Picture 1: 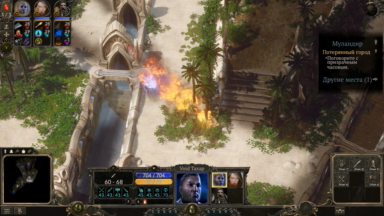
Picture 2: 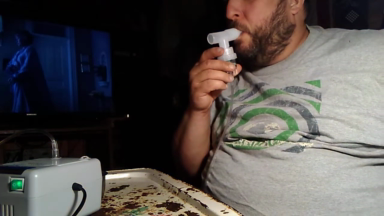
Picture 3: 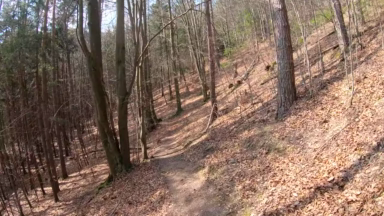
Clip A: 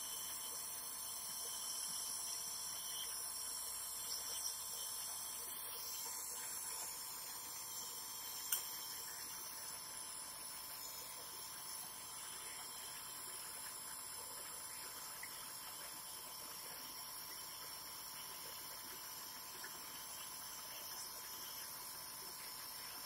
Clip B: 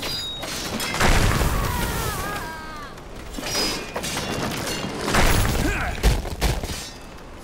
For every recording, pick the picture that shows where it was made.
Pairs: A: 2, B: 1